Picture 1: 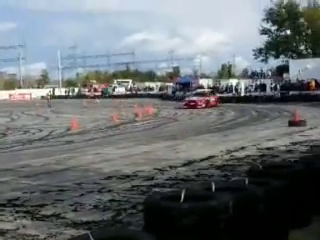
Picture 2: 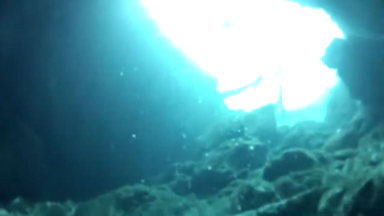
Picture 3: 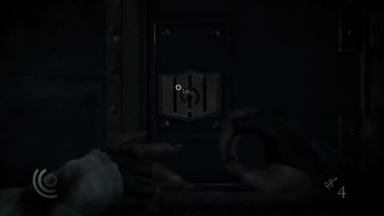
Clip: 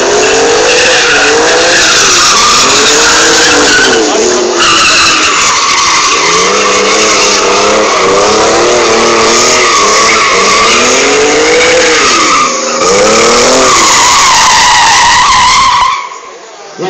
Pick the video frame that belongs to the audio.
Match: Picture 1